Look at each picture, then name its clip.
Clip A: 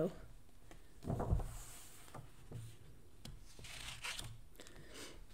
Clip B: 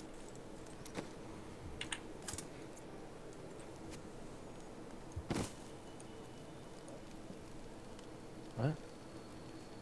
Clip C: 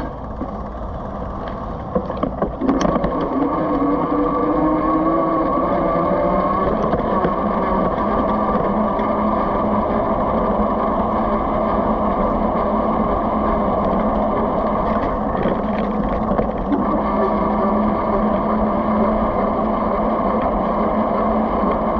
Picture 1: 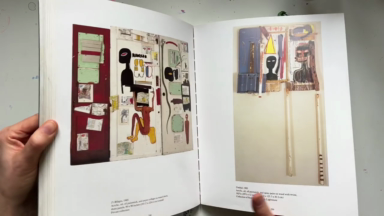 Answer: A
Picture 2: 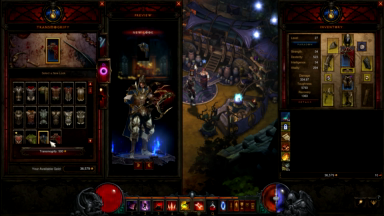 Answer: B